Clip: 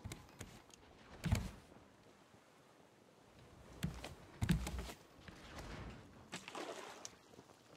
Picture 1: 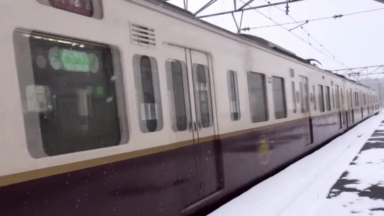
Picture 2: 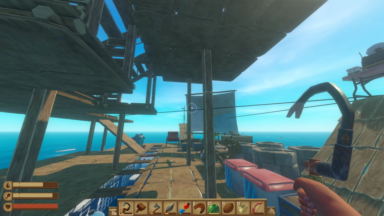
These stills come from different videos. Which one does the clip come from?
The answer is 2